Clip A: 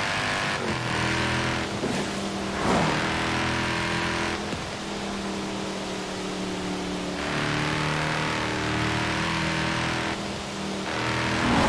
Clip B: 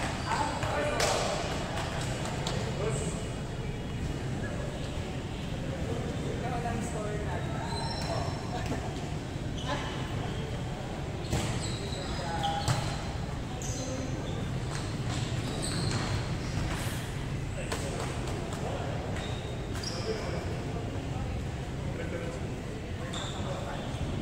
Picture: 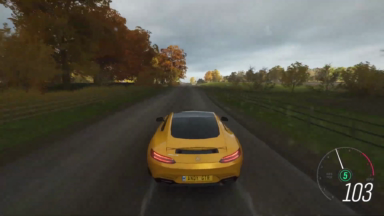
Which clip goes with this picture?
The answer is A